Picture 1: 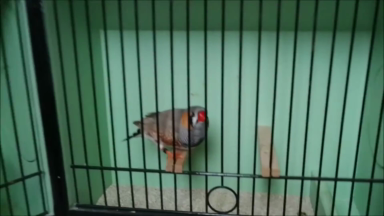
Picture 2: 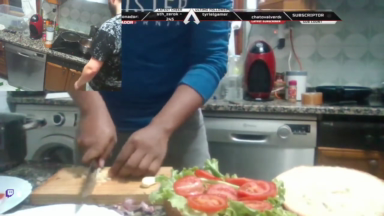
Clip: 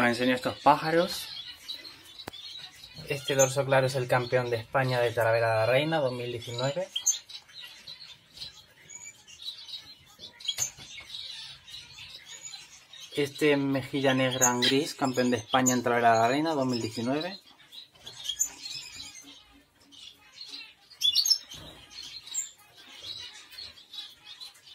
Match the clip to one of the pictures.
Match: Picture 1